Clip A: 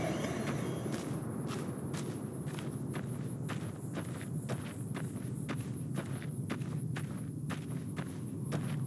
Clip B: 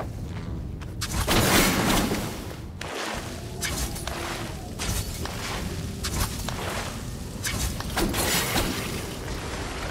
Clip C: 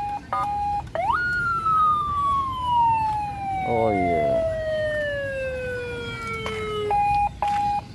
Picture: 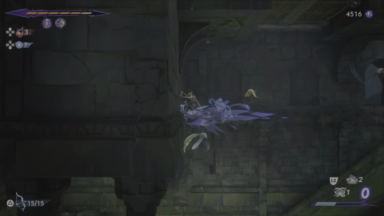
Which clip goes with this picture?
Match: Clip B